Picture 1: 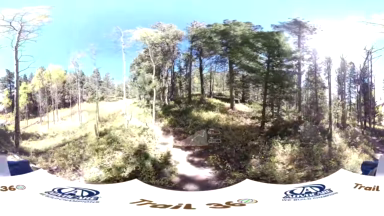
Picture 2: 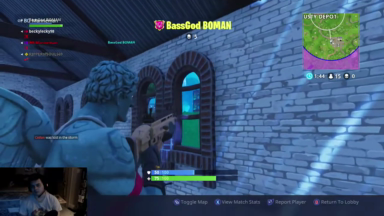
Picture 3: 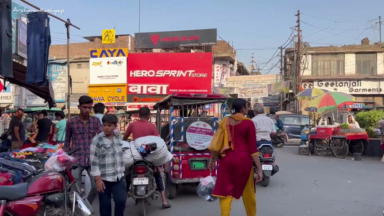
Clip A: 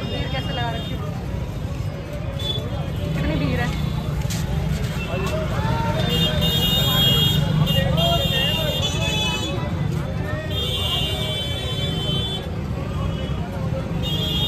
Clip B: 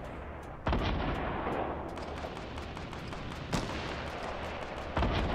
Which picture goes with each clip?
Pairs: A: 3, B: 2